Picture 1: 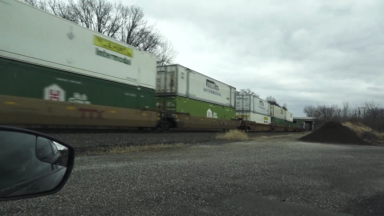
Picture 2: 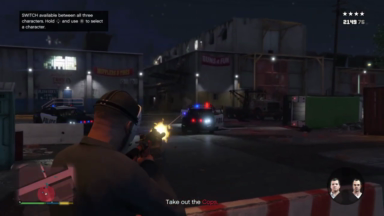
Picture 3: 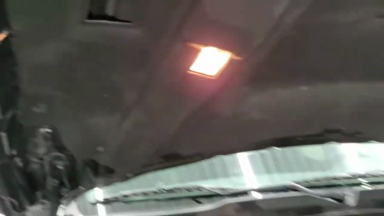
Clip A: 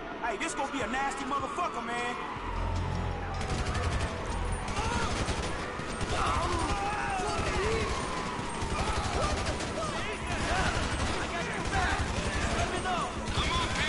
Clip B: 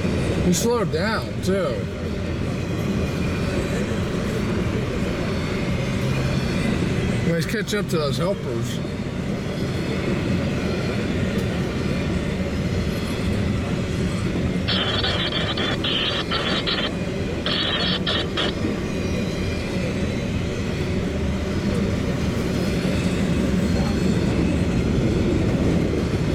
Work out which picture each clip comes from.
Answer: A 2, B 1